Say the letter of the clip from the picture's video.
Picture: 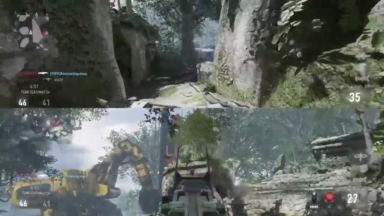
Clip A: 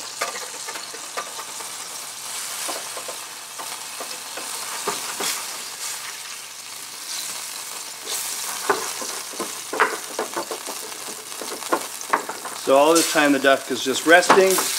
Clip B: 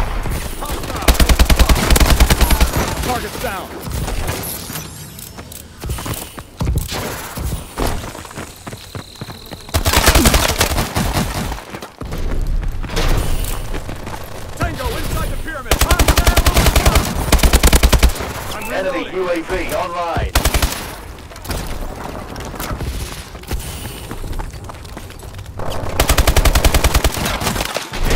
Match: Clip B